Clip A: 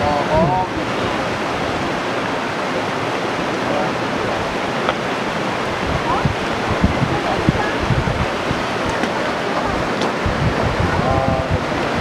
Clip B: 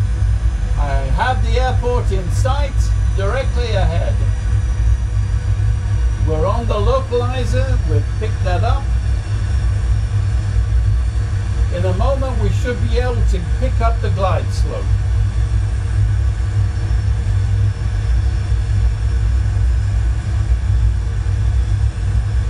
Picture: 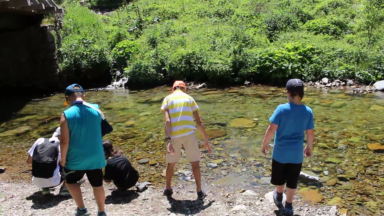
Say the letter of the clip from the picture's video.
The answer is A